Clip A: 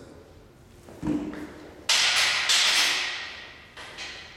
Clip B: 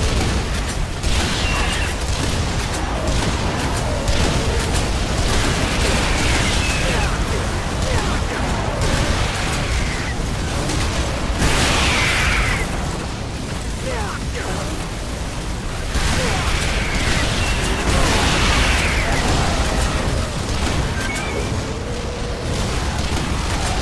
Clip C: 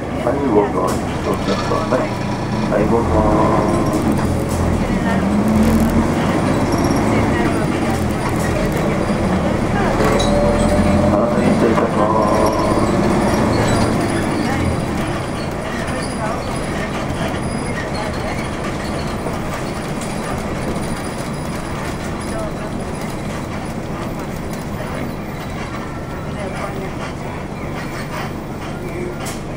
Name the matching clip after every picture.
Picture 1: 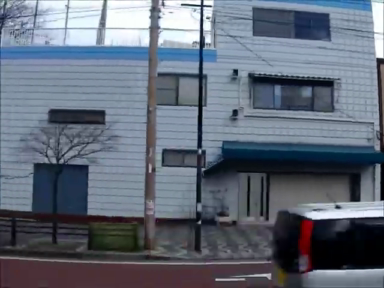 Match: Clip C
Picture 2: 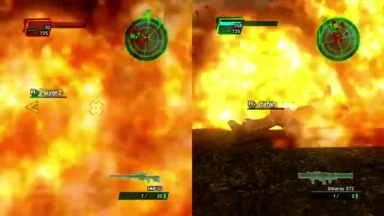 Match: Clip B